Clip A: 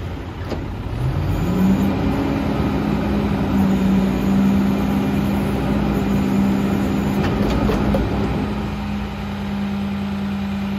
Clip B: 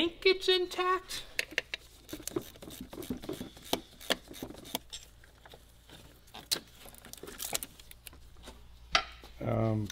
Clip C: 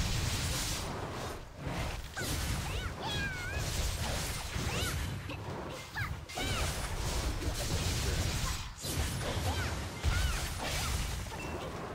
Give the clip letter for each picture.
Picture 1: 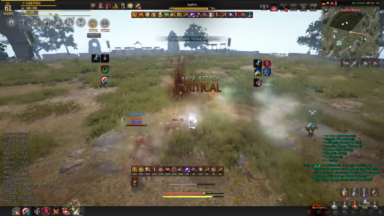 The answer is C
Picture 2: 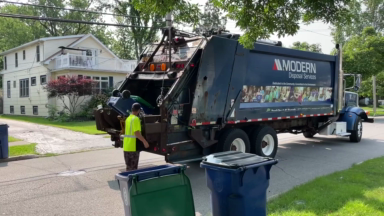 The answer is A